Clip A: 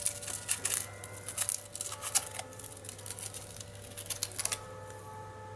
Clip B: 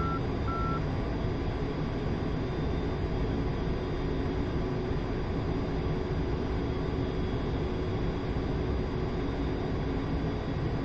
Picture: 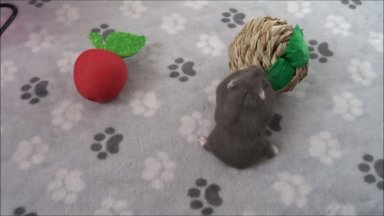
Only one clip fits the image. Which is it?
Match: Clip A